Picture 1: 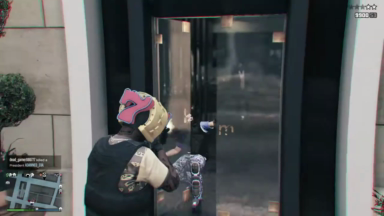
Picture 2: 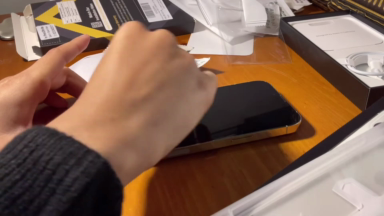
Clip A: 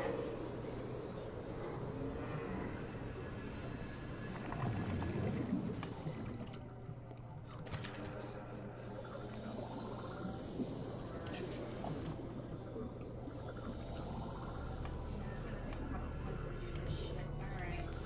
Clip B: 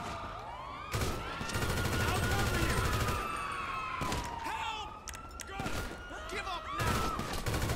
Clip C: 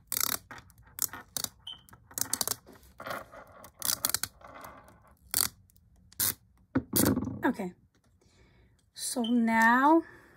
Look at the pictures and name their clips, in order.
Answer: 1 B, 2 C